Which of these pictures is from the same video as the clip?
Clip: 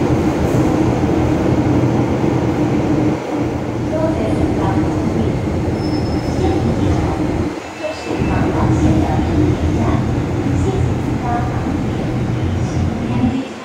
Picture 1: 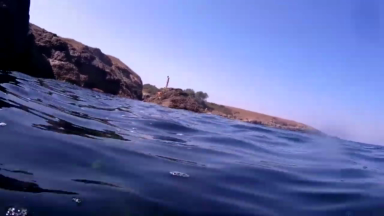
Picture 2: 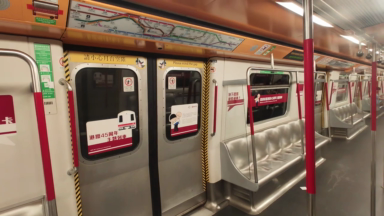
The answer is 2